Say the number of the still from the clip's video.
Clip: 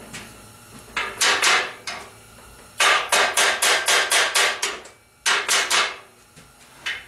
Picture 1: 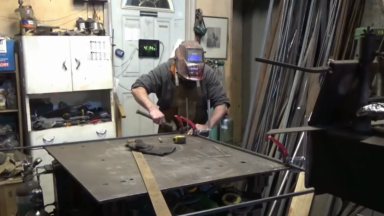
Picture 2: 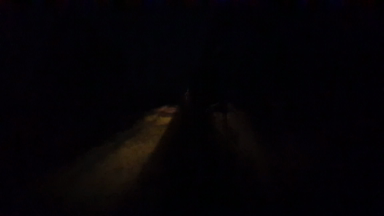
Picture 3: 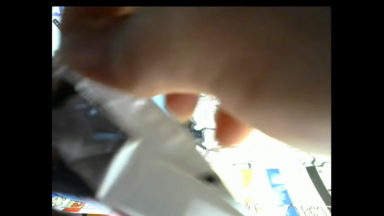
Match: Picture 1